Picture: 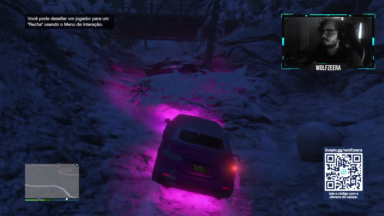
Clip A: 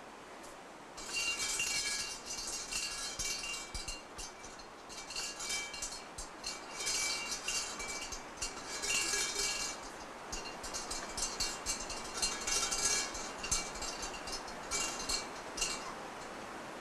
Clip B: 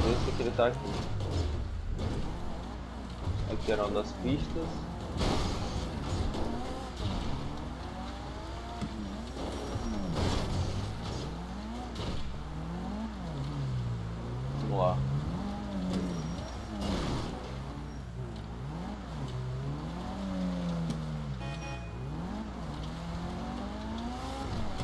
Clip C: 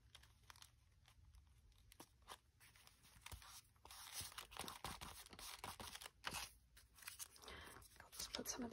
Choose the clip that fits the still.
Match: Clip B